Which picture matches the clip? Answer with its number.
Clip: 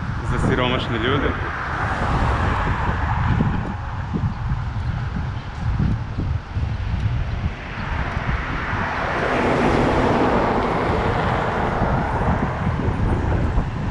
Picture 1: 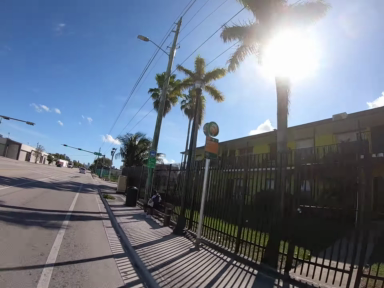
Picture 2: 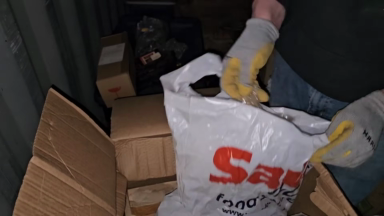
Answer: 1